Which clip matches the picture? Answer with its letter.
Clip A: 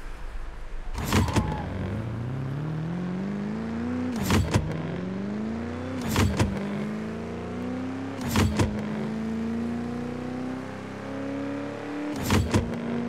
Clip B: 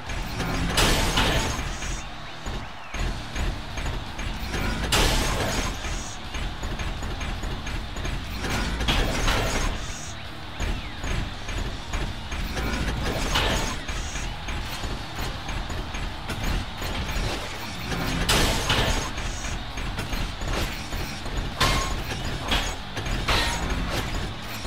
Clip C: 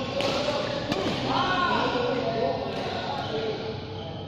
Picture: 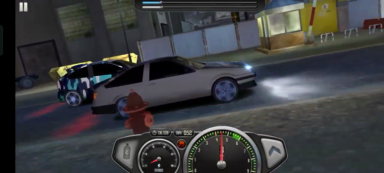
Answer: A